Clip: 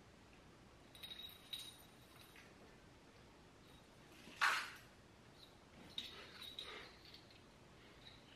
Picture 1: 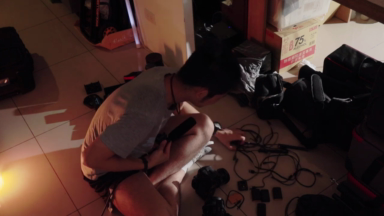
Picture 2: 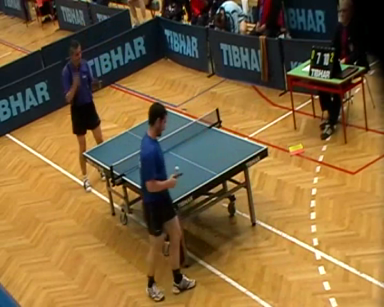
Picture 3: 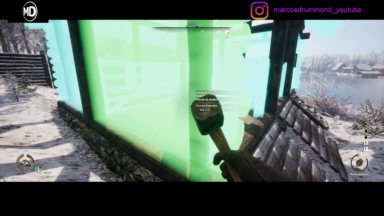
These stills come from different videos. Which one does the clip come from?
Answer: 1